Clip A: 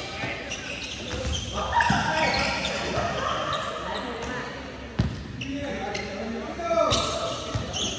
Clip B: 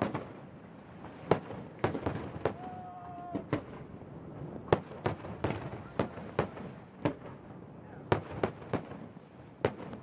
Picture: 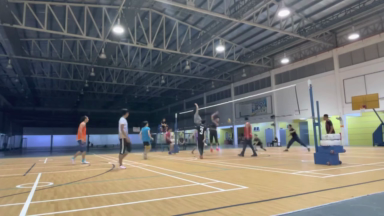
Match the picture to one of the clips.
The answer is A